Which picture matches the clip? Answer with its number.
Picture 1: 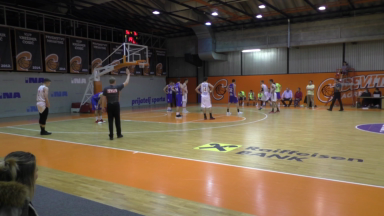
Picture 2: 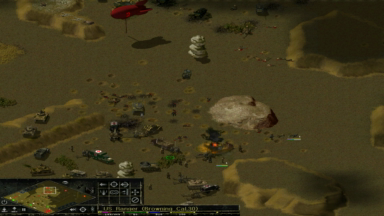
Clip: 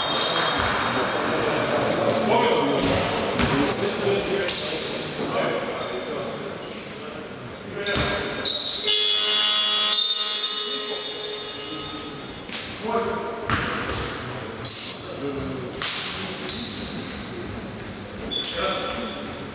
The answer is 1